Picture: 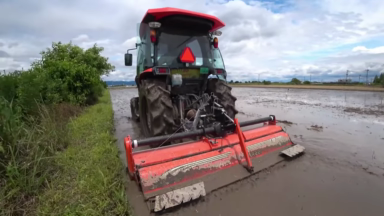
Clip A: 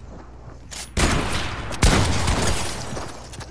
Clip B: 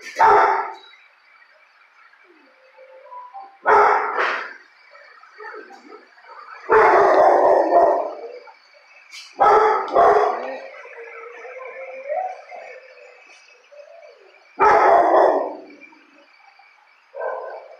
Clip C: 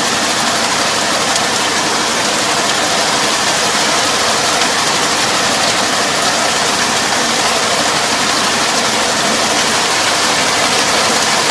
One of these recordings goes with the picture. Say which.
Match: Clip C